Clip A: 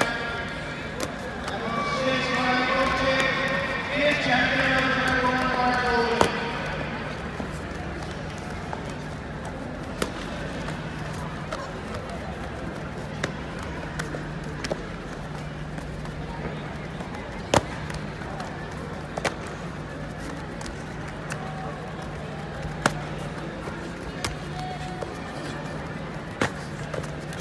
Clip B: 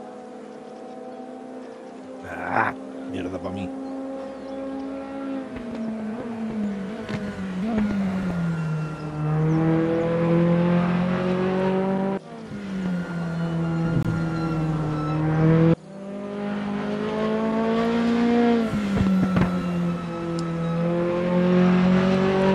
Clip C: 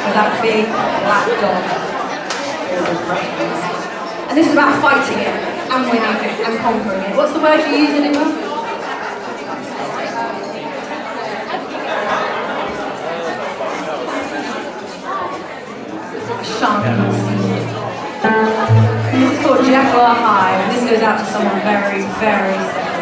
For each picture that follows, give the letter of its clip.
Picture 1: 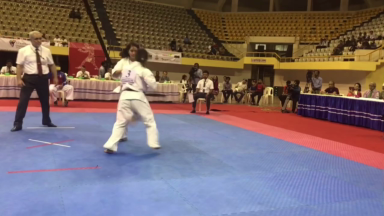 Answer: A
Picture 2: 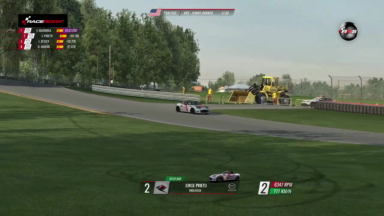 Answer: B